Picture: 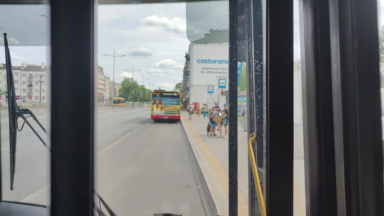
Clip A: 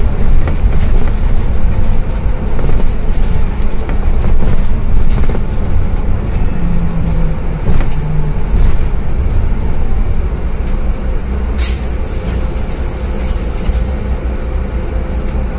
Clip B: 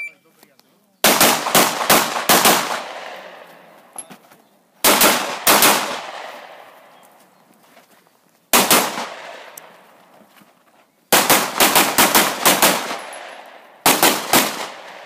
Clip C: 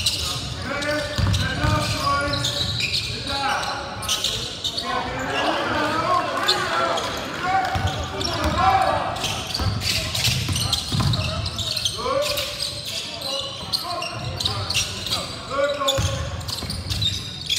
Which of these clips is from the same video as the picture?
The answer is A